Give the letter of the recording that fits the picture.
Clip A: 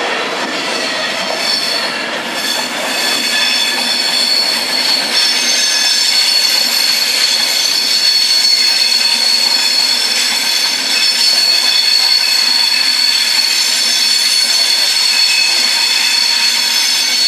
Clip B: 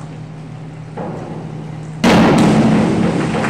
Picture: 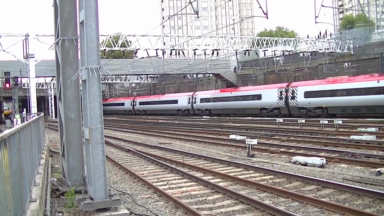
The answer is A